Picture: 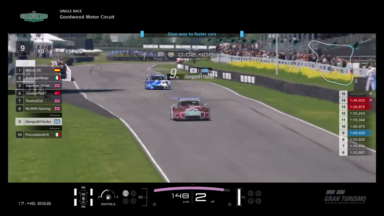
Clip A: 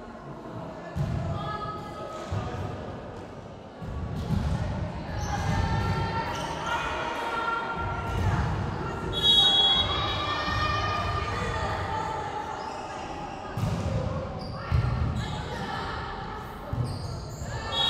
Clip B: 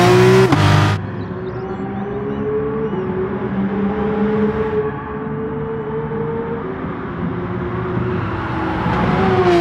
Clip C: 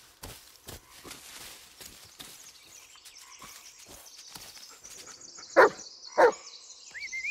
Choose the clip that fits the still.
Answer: B